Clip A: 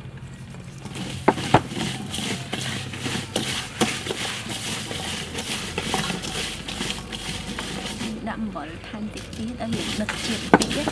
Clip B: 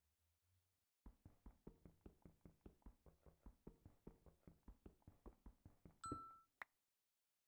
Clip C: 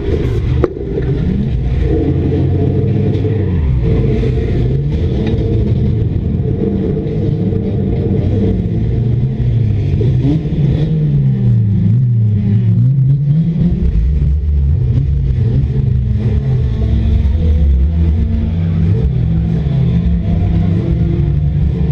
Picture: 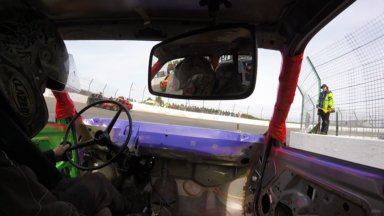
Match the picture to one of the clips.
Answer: C